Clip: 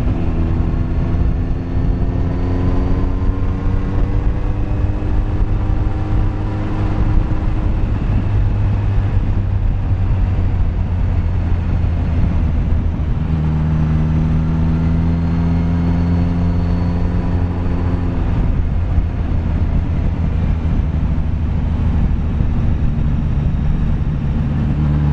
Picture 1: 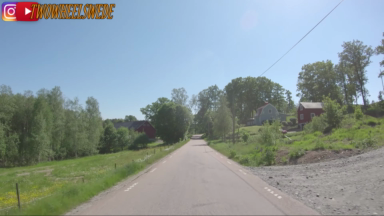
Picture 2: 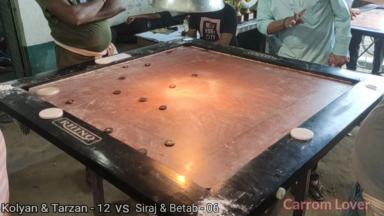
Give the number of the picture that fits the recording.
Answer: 1